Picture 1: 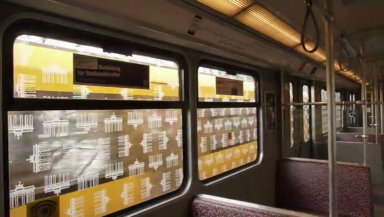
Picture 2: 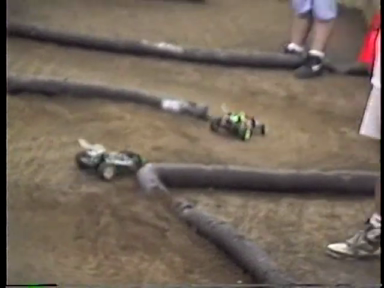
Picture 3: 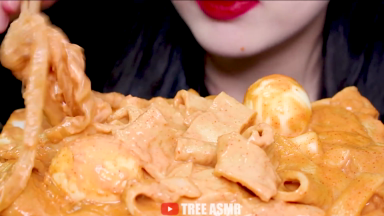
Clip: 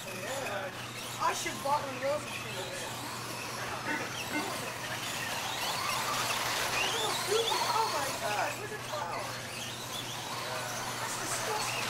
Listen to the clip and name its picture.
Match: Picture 2